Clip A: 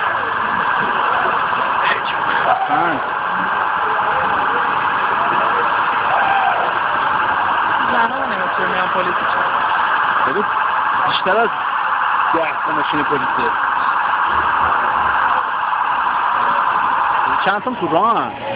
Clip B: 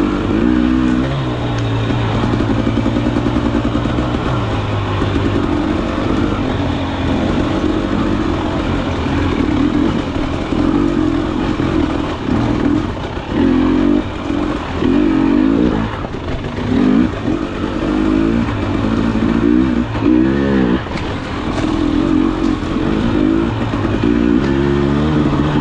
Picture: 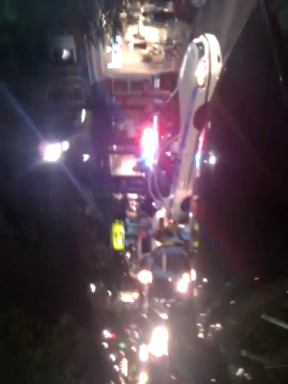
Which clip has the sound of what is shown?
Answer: A